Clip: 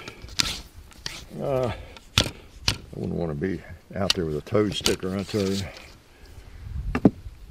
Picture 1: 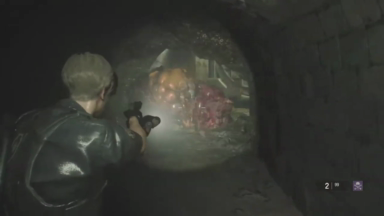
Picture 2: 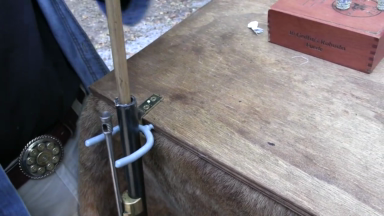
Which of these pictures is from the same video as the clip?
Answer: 2